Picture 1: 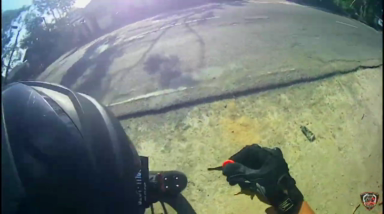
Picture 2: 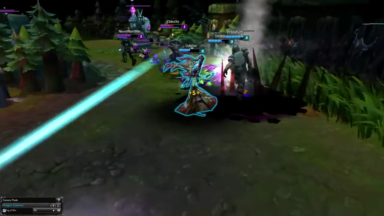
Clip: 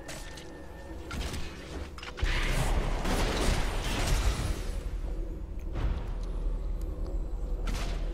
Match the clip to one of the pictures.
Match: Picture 2